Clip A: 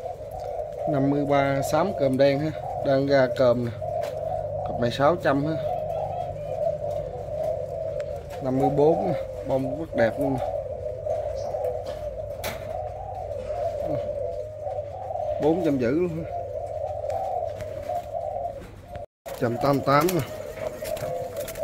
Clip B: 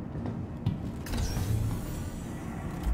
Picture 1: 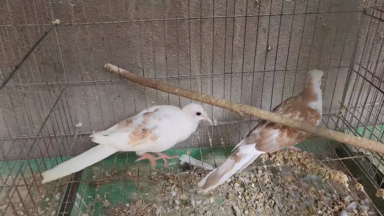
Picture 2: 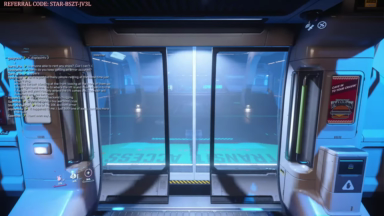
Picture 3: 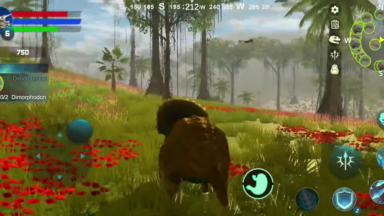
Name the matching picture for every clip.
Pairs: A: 1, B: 2